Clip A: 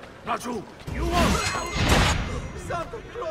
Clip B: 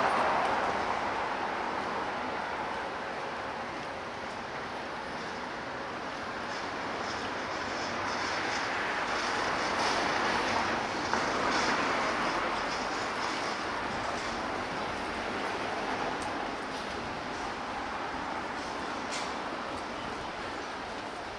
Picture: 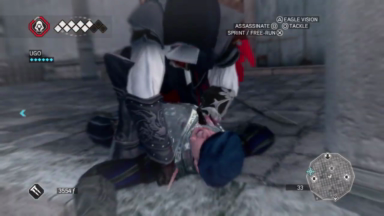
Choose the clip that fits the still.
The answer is A